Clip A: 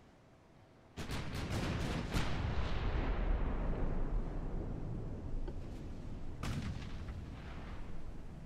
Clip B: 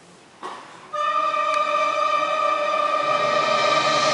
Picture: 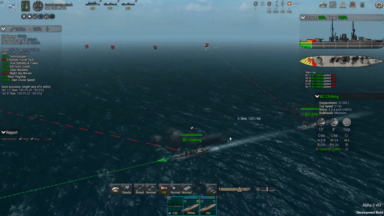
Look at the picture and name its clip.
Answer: A